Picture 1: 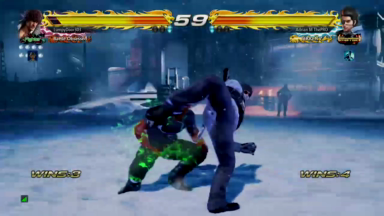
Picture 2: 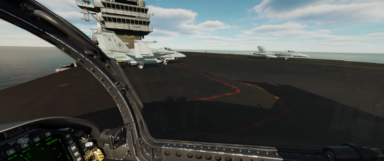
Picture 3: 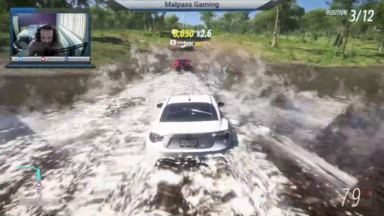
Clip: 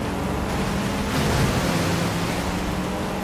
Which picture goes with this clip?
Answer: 3